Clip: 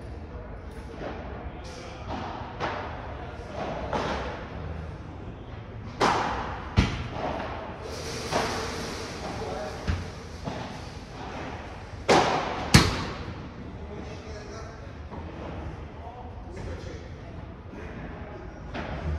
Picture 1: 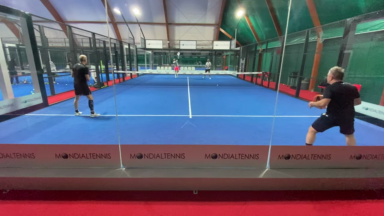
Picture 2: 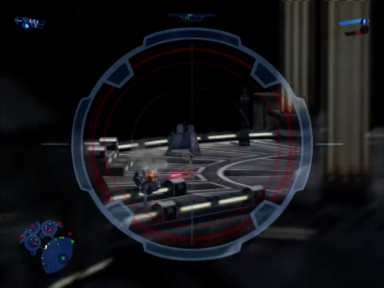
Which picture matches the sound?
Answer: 1